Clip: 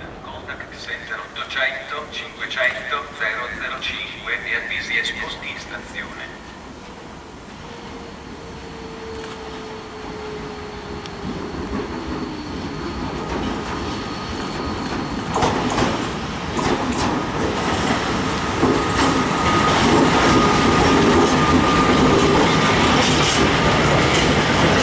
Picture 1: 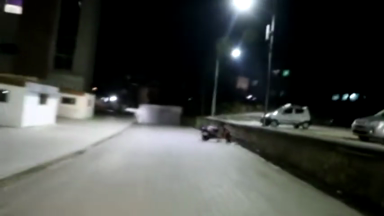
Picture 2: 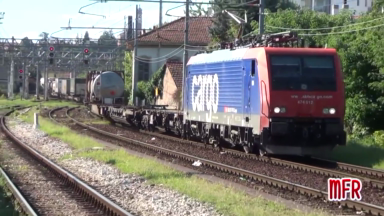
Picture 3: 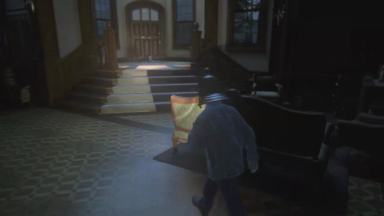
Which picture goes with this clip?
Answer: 2